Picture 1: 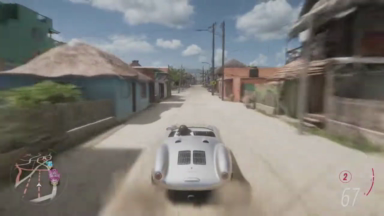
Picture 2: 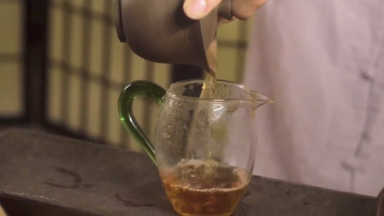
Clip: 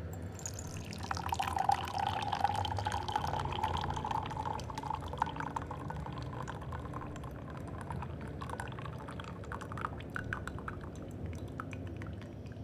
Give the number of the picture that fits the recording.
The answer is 2